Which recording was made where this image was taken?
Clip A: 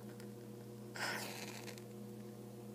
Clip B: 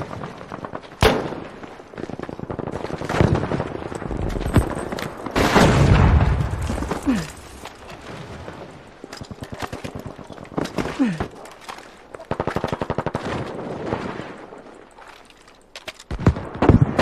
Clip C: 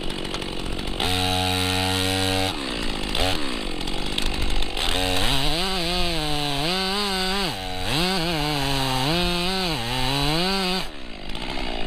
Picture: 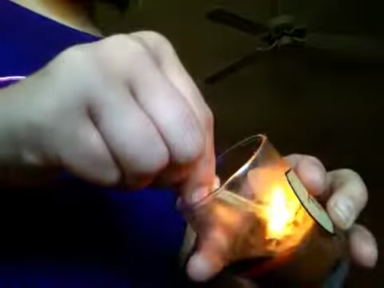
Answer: A